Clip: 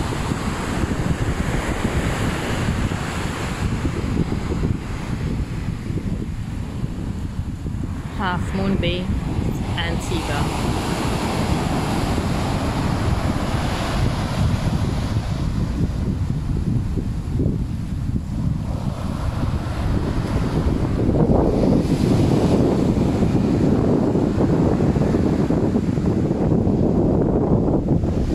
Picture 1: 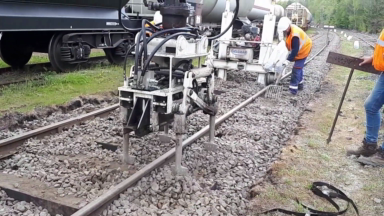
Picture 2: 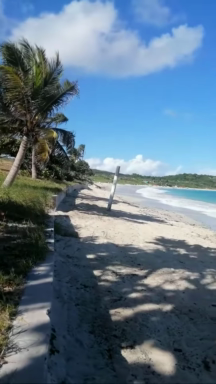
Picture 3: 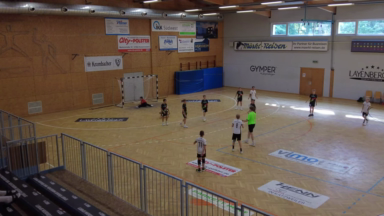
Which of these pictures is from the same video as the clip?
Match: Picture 2